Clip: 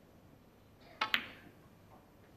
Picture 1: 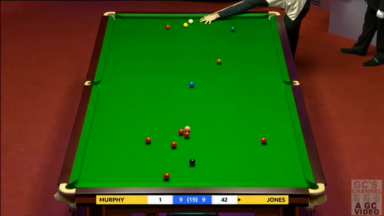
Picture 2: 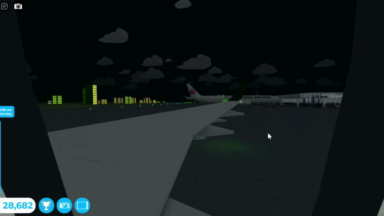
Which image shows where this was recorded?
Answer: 1